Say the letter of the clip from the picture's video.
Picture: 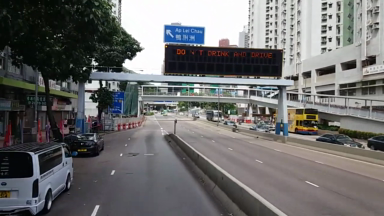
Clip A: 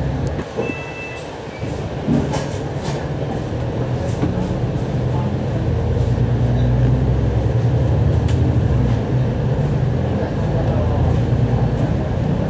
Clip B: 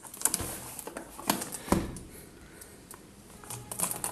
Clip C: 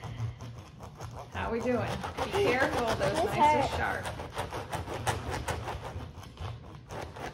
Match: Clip A